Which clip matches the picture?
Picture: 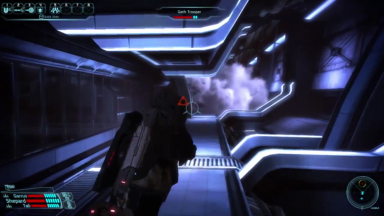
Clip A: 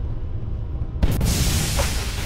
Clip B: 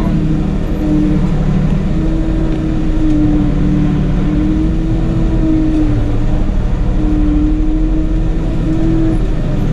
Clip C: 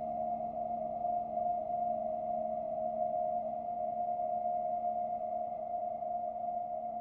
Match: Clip A